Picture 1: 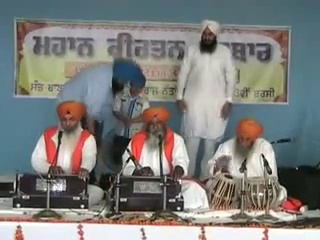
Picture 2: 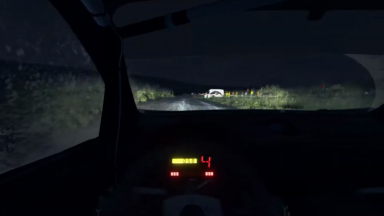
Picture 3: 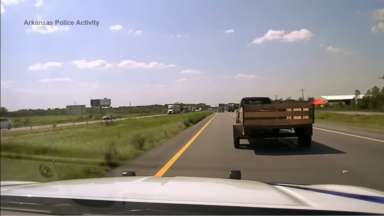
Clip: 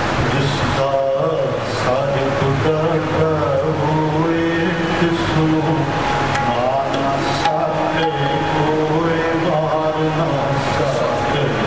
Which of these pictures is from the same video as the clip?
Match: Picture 1